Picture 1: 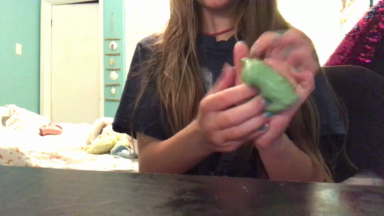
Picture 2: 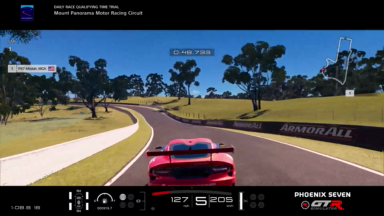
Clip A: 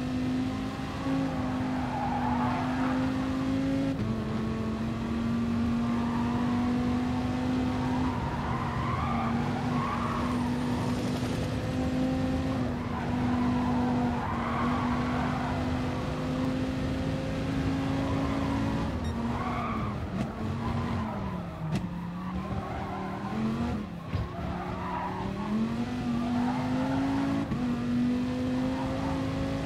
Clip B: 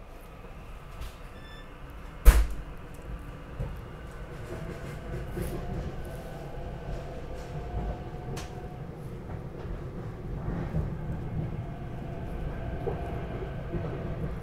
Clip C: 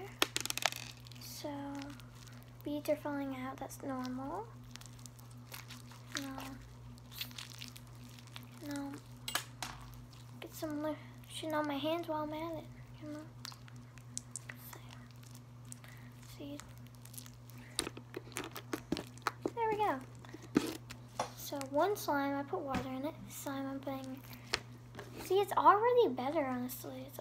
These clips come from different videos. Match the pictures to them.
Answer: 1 C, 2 A